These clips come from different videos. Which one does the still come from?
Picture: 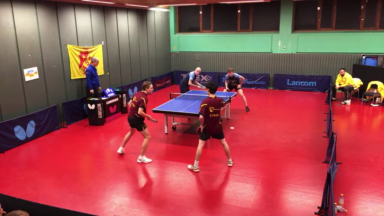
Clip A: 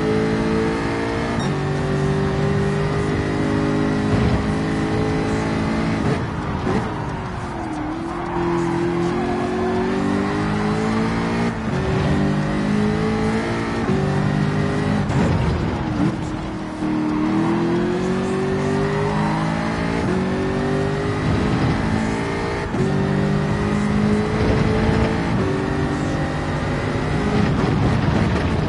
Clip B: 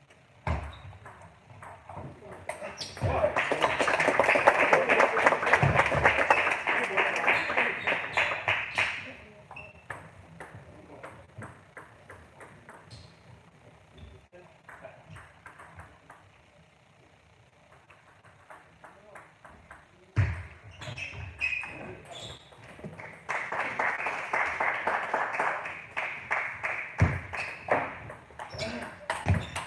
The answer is B